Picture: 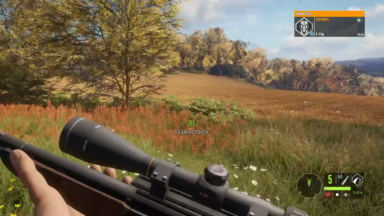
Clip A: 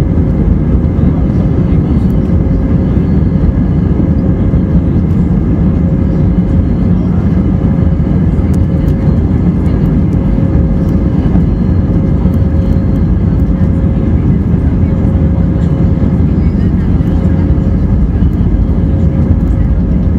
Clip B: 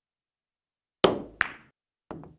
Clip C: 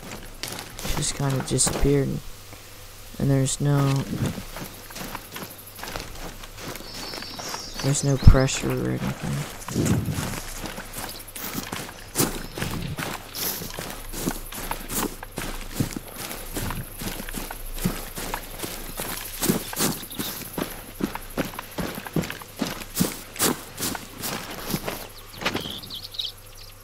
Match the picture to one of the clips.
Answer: C